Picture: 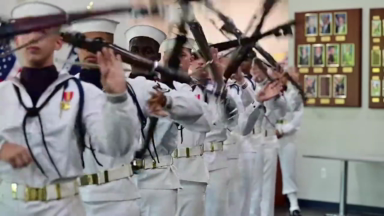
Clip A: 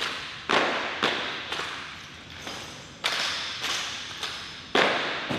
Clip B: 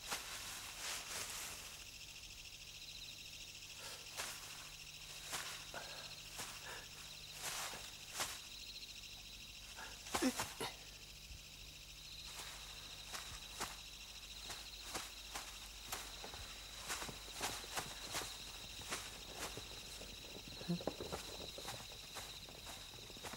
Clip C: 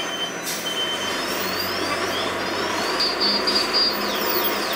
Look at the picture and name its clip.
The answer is A